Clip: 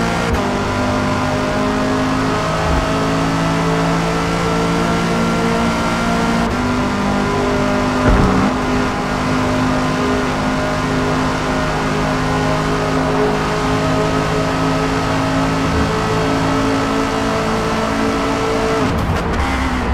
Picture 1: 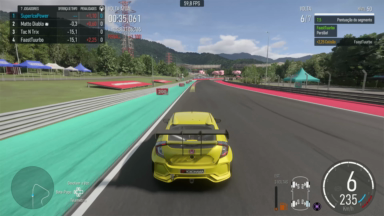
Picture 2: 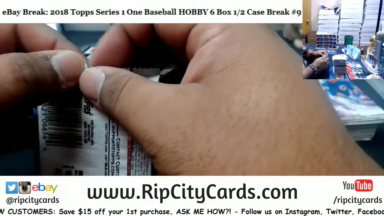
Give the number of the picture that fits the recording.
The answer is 1